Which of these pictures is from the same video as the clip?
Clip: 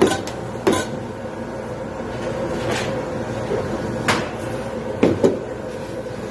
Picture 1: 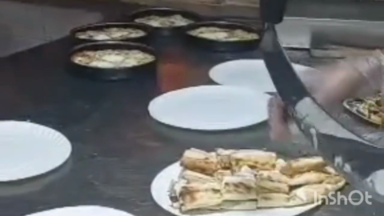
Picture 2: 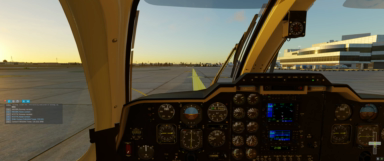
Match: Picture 1